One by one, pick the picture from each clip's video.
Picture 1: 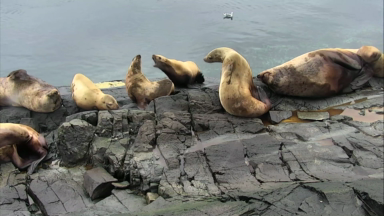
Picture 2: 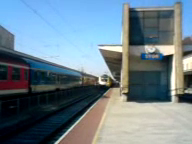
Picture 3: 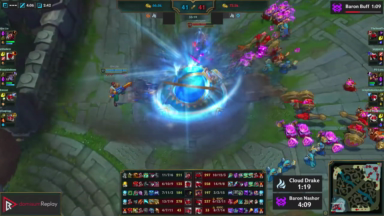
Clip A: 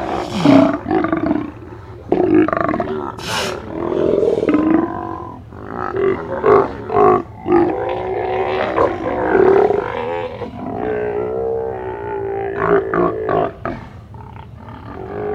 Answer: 1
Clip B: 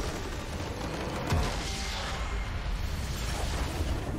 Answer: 3